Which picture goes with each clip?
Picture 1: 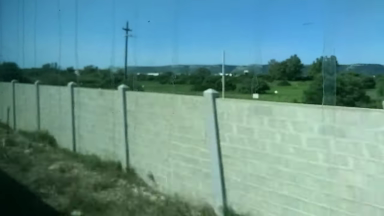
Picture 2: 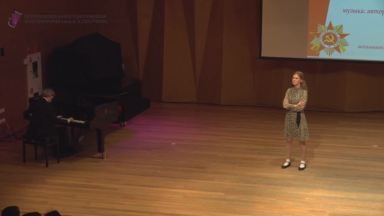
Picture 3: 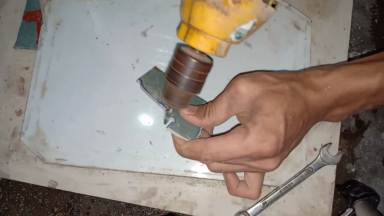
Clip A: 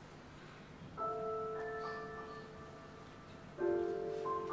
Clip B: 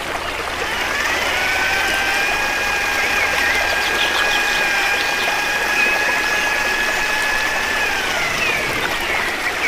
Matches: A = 2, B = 3